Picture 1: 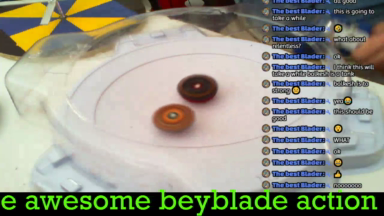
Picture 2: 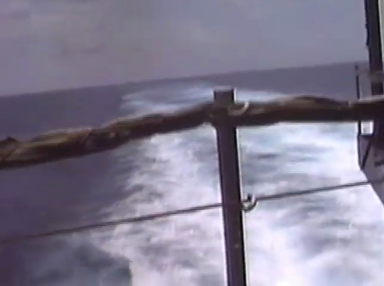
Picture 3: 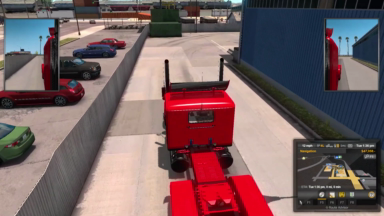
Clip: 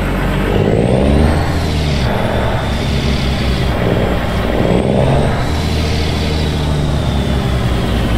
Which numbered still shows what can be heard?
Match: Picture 3